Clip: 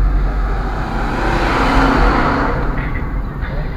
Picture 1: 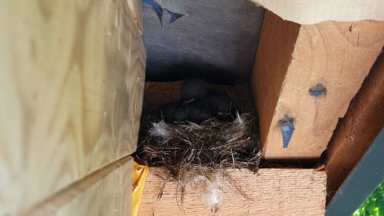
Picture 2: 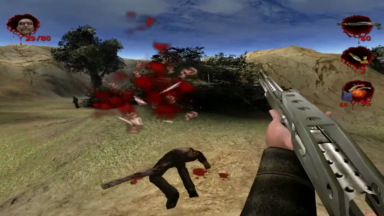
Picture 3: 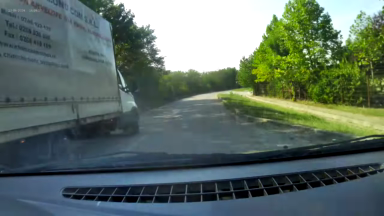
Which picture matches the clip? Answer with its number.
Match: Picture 3